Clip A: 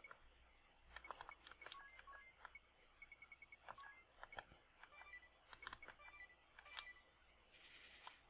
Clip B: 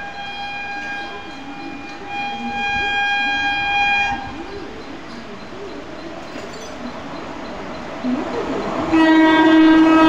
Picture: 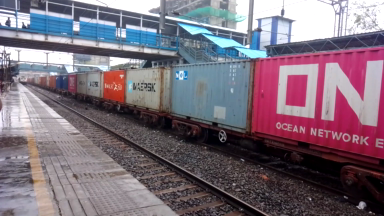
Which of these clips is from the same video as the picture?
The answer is B